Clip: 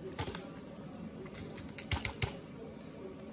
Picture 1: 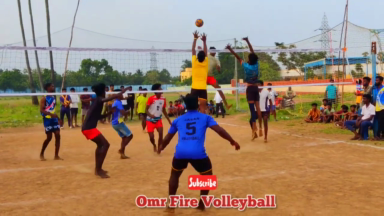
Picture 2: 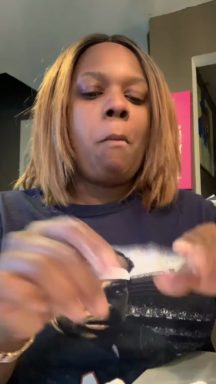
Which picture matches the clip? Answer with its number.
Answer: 2